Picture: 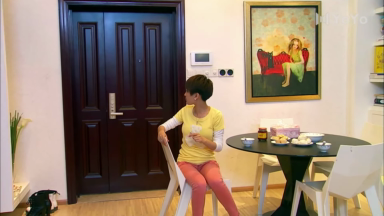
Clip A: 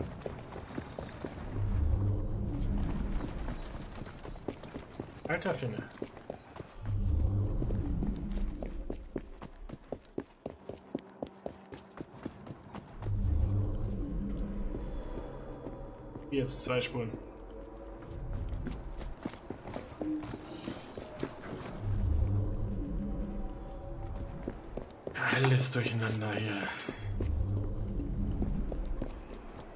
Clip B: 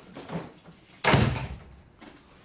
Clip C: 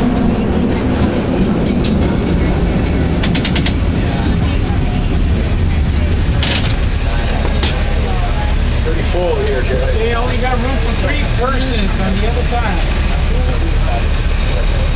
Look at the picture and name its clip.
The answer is B